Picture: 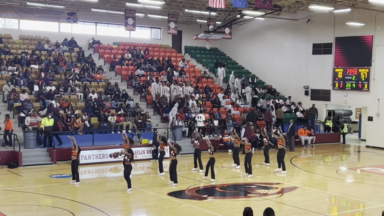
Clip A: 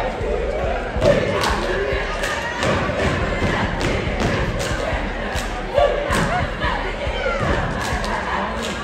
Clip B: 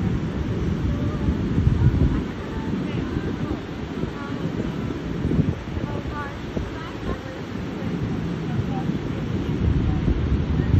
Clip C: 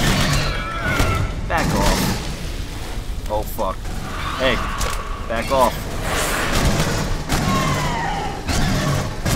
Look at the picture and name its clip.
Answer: A